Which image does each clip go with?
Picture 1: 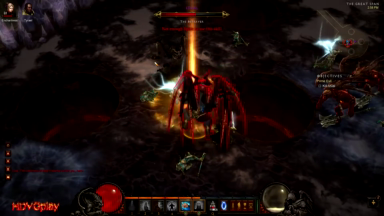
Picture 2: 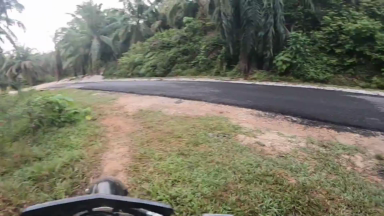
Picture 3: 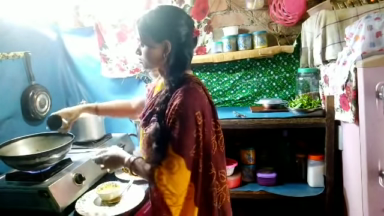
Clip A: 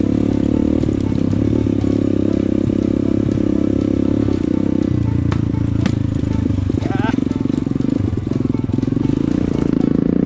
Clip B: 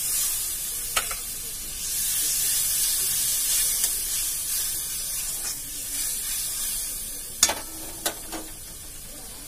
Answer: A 2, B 3